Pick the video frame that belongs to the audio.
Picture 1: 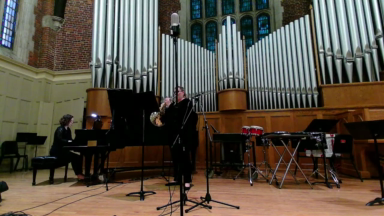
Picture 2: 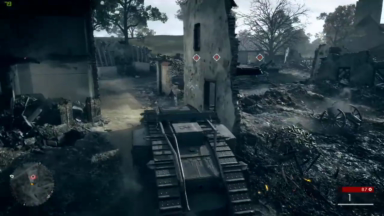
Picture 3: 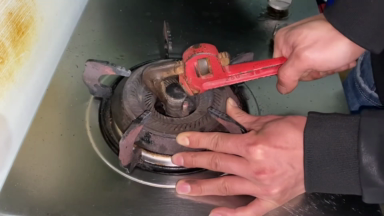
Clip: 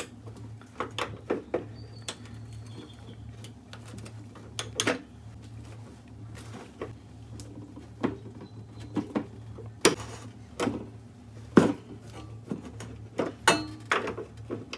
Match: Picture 3